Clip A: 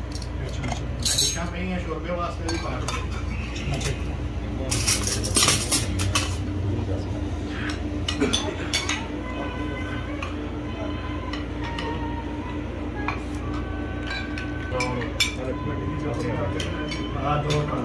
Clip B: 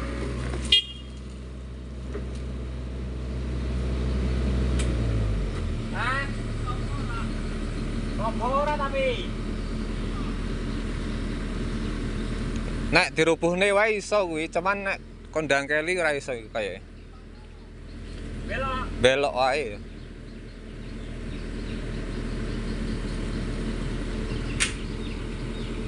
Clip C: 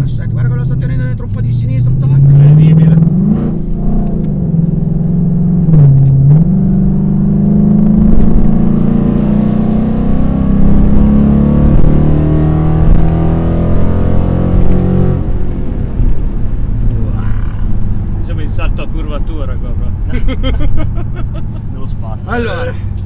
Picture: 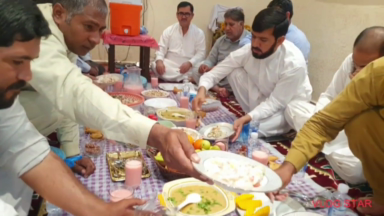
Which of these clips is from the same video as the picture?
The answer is A